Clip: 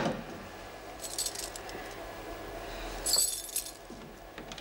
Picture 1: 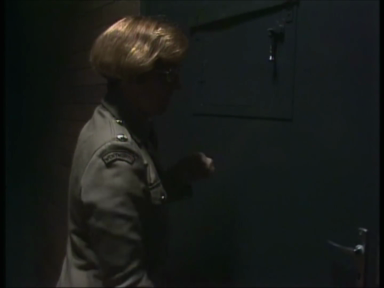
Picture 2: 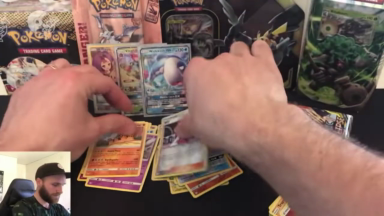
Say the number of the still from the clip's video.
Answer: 1